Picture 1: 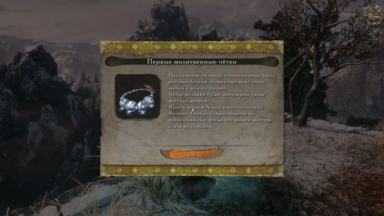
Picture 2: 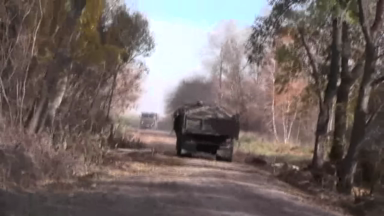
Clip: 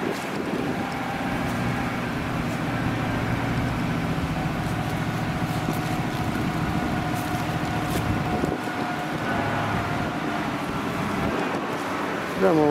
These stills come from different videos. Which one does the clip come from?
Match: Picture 2